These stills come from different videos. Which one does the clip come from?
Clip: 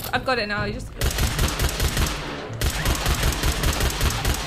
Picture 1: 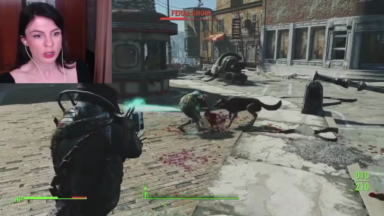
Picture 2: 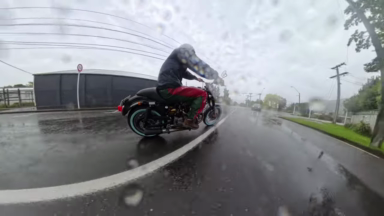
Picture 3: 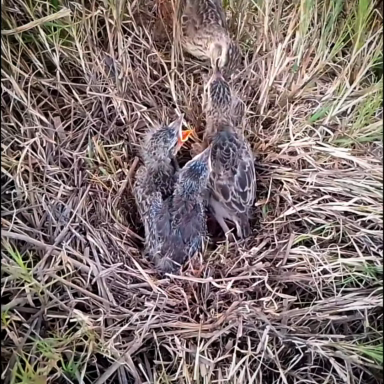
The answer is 1